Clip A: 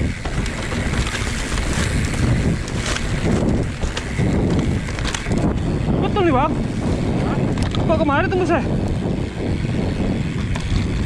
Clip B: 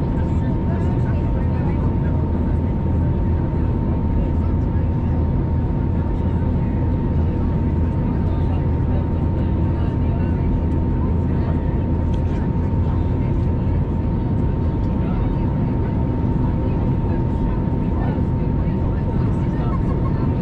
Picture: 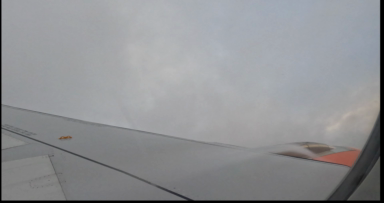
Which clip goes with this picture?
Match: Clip B